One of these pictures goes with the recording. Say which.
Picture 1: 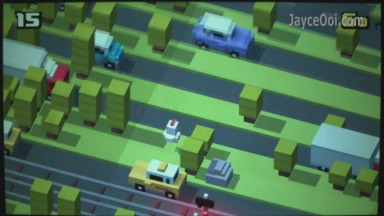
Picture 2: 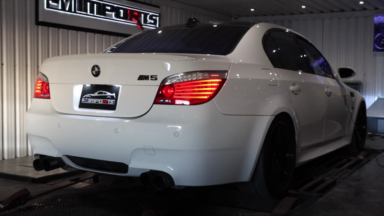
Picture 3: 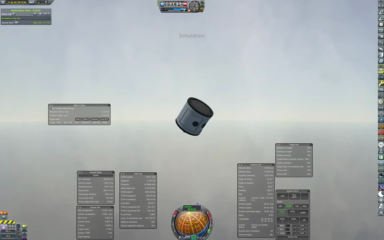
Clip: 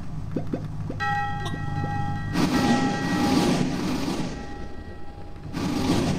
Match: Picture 1